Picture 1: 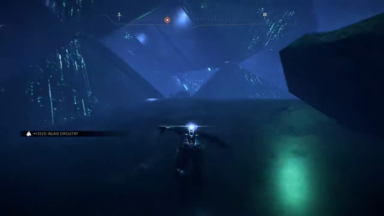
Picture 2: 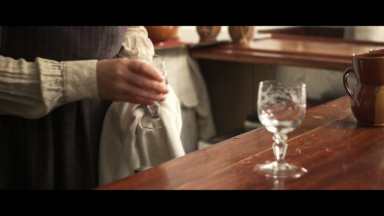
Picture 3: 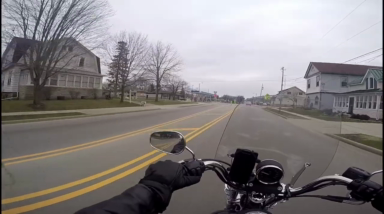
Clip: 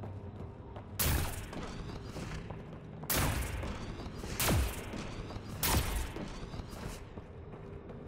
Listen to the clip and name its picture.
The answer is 1